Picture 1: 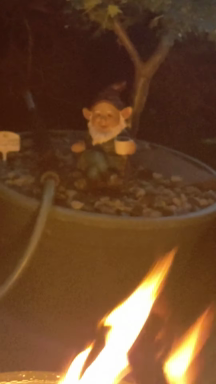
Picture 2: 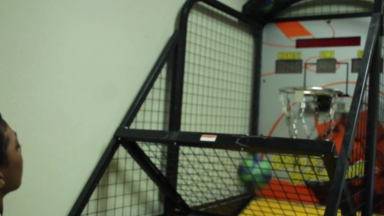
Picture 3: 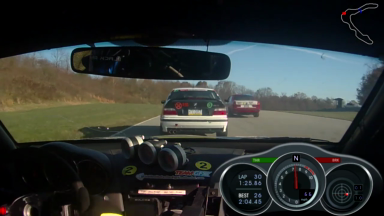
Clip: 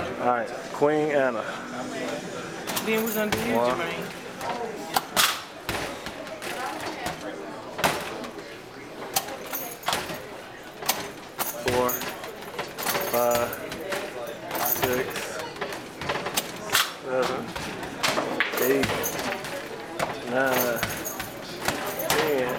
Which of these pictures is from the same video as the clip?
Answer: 2